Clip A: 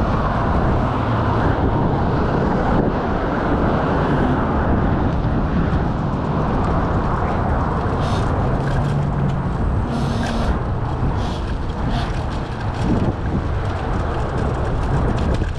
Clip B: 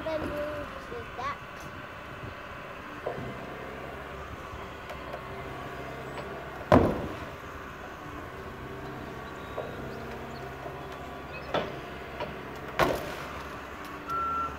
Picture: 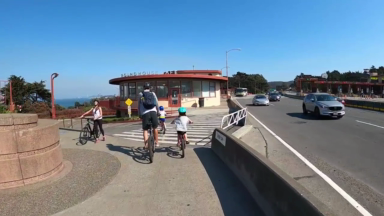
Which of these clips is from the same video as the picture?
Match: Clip A